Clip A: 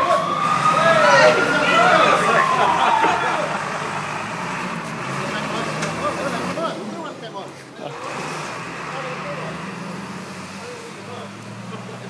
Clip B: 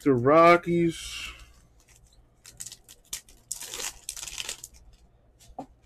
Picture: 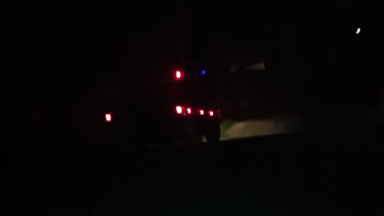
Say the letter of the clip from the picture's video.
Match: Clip A